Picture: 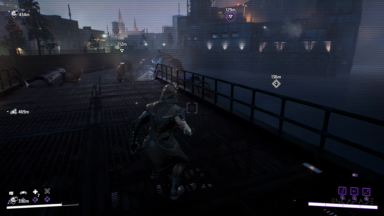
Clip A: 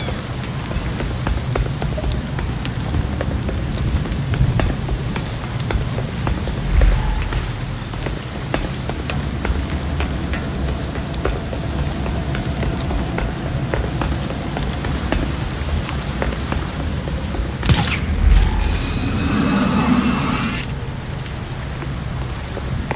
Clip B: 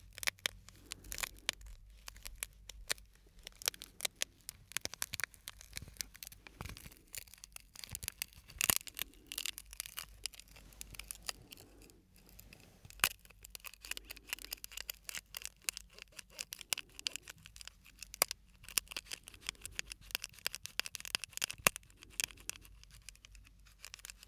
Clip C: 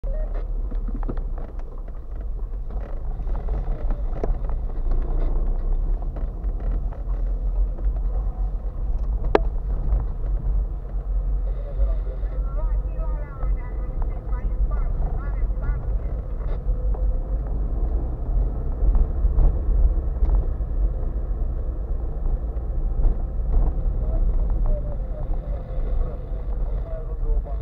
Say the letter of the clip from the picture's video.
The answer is A